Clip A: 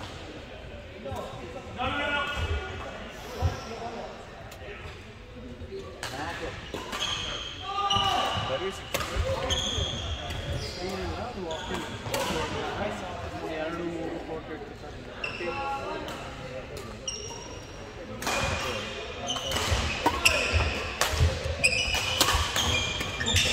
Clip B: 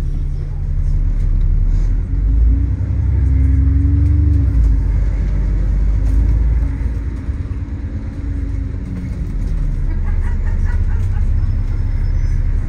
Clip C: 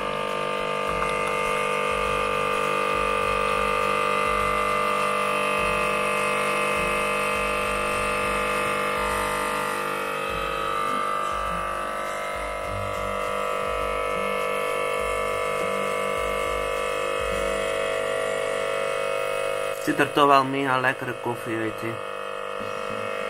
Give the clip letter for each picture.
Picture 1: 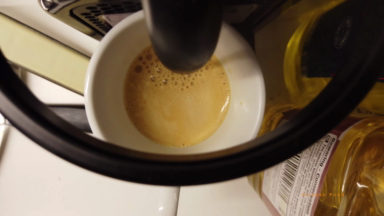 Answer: C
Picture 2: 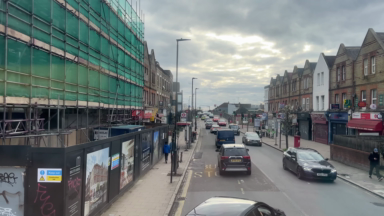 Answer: B